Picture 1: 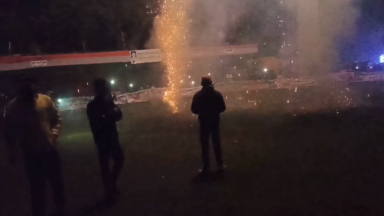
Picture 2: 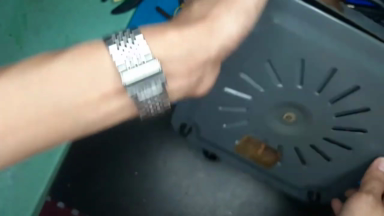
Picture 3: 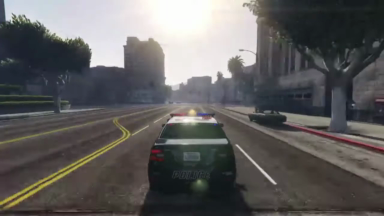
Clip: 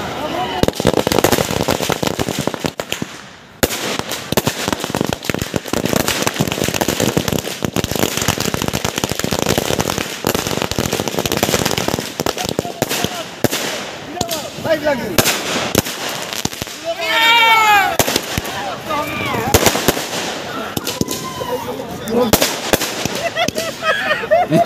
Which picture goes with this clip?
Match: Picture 1